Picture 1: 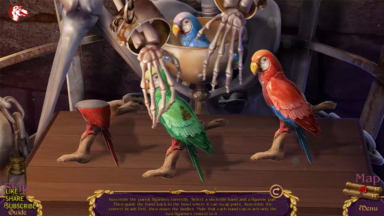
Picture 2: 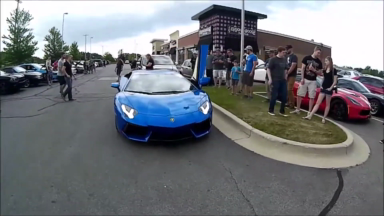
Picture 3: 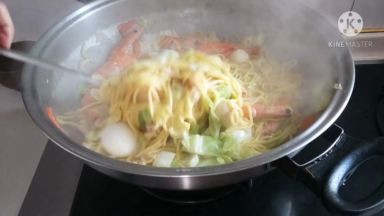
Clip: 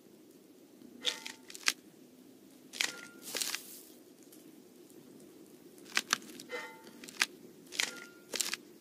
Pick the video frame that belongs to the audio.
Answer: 1